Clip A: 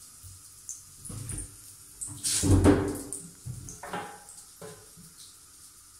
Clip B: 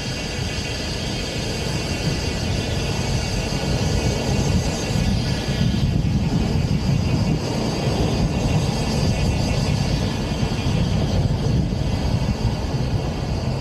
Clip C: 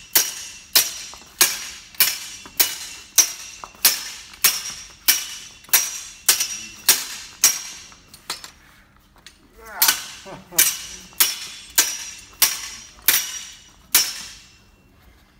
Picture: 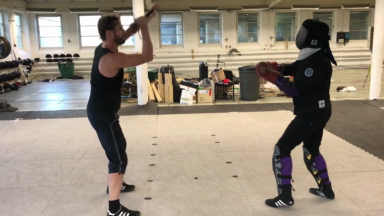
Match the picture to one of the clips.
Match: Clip C